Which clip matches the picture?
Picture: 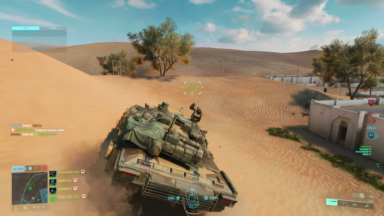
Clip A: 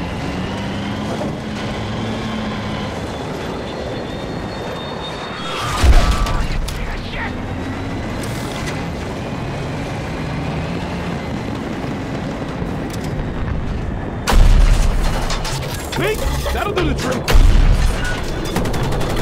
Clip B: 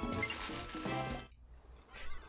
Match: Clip A